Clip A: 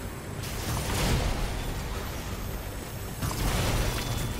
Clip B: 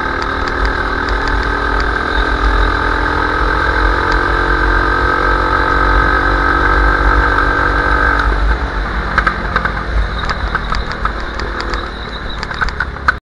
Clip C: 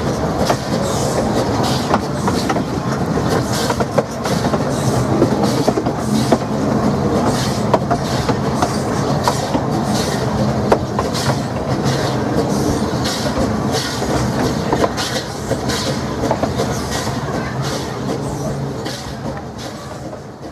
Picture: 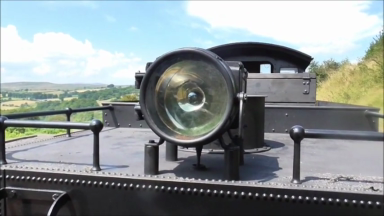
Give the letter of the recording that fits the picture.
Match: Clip C